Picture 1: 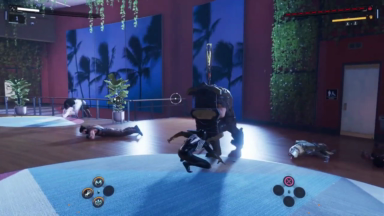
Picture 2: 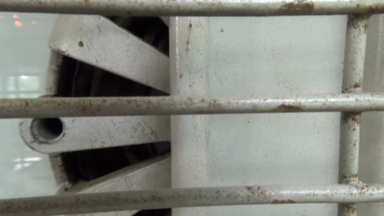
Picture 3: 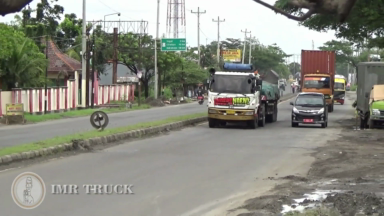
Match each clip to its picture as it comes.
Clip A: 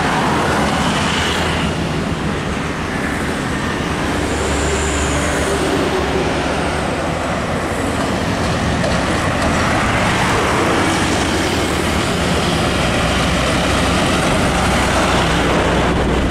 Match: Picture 3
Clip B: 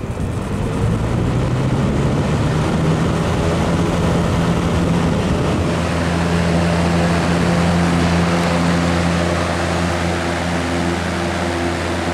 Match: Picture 2